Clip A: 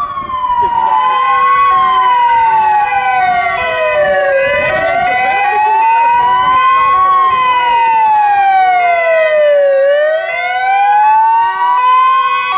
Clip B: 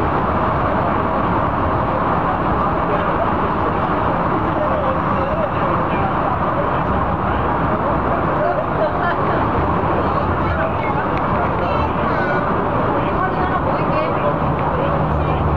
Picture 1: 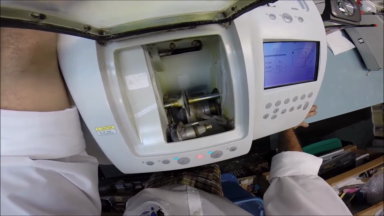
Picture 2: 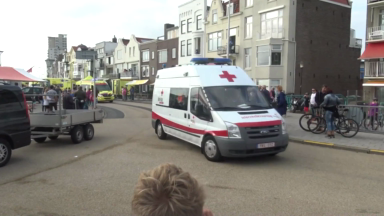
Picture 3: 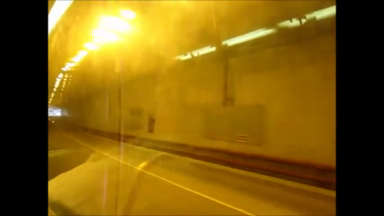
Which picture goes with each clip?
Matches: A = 2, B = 3